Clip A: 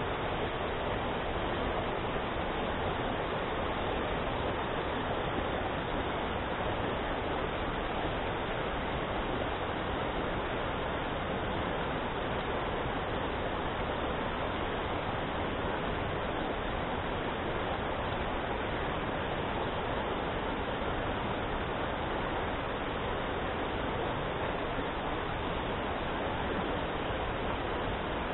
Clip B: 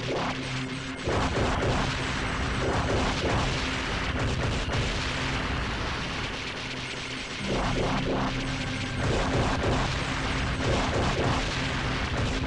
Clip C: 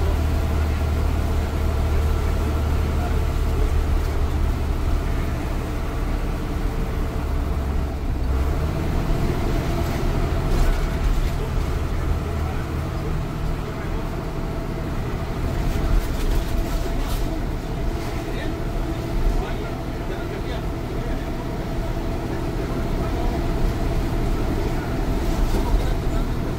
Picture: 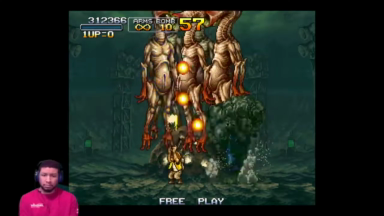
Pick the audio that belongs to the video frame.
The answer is B